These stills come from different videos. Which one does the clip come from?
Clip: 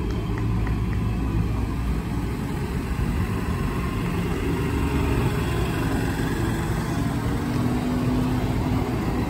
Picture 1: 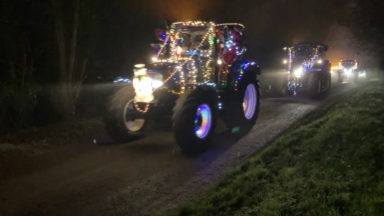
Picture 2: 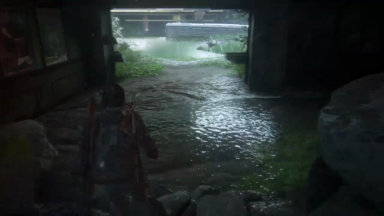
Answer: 1